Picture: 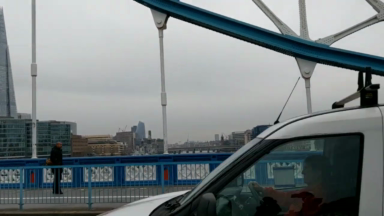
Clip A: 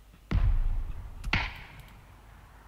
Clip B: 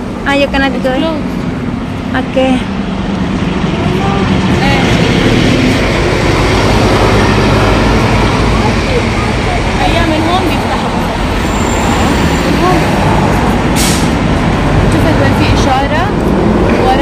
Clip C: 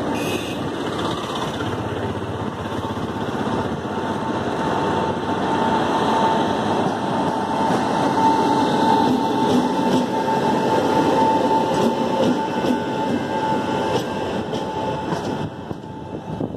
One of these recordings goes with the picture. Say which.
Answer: B